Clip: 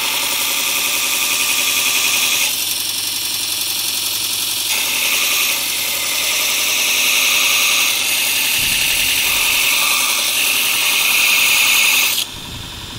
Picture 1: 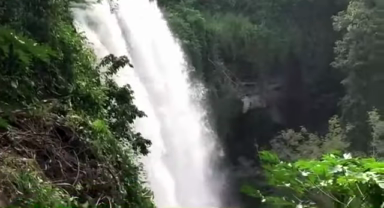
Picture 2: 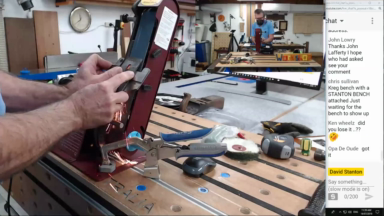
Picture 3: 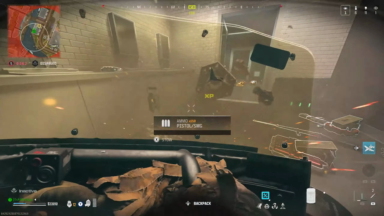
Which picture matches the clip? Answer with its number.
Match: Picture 2